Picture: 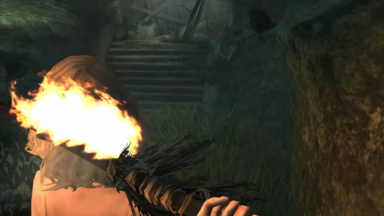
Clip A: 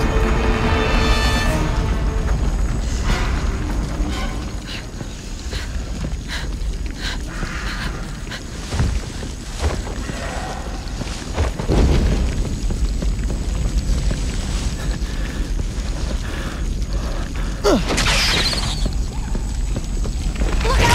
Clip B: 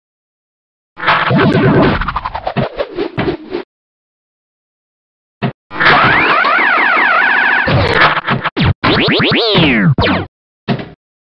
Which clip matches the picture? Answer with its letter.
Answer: A